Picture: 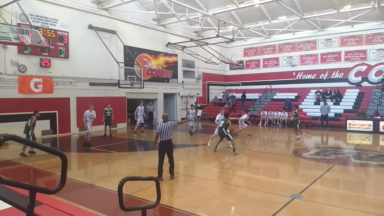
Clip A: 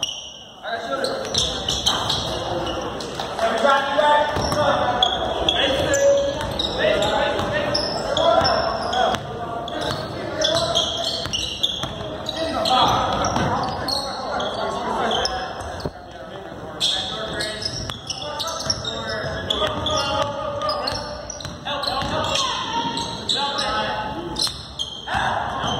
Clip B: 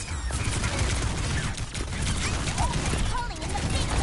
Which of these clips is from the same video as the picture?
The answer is A